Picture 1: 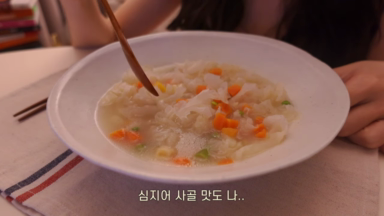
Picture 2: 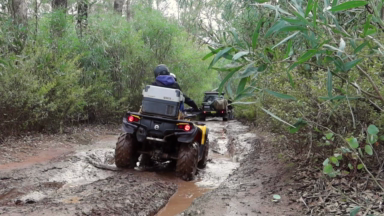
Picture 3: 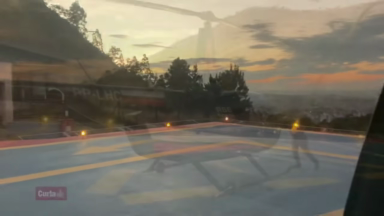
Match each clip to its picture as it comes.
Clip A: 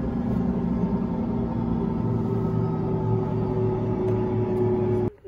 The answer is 3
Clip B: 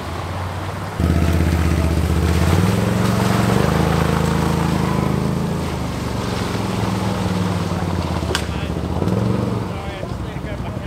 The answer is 2